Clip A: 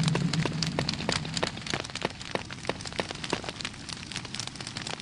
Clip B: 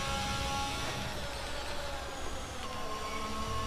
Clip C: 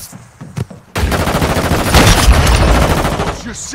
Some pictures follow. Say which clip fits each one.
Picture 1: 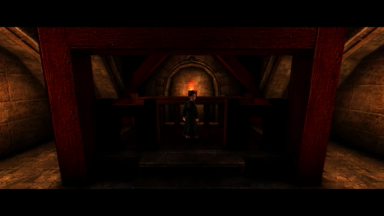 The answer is A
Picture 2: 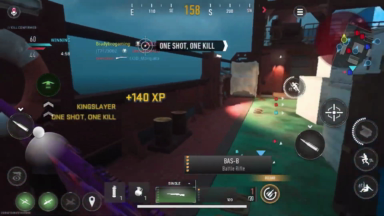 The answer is C